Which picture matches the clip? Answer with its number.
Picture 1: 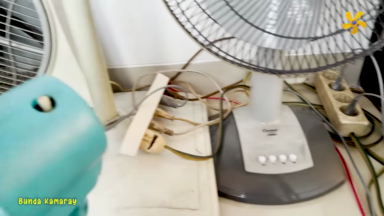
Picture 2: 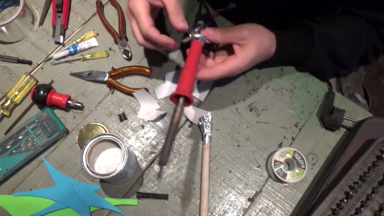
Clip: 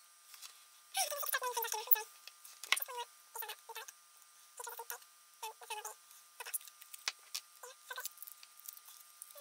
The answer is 2